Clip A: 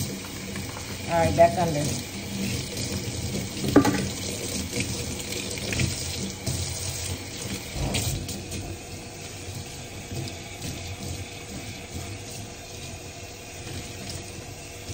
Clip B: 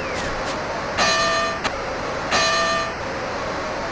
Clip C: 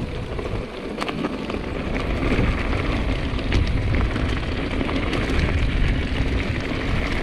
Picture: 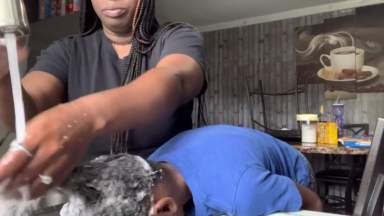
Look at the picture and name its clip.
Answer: A